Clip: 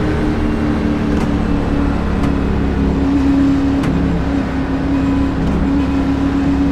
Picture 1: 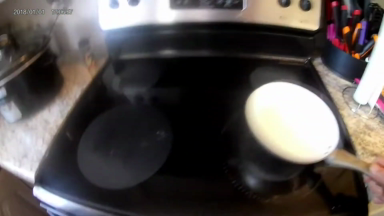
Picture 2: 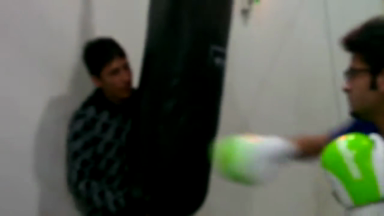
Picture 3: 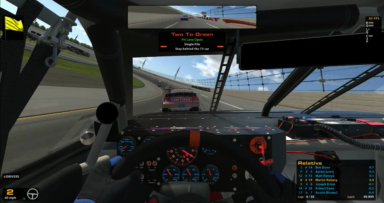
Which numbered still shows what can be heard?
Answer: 3